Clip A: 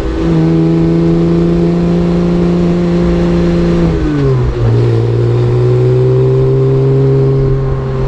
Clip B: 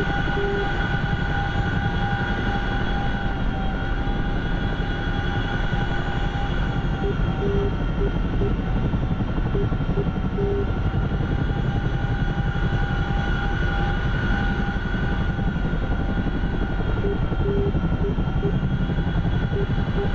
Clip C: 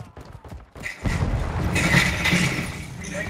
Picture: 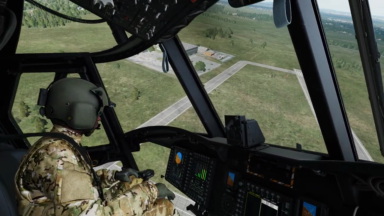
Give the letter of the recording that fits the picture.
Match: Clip B